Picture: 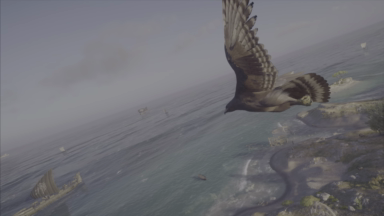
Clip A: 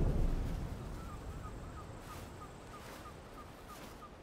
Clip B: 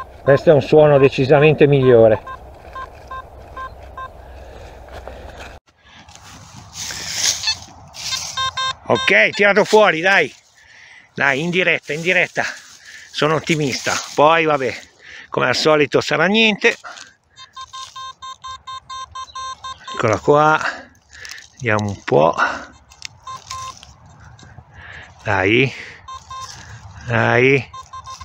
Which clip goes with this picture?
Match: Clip A